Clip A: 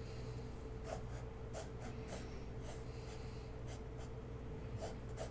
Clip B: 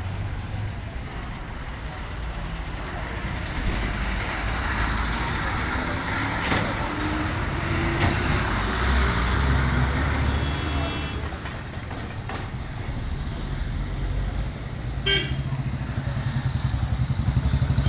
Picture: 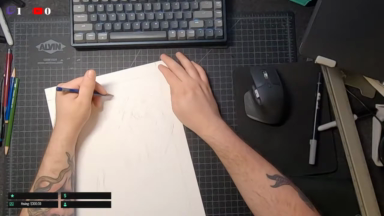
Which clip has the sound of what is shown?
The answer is A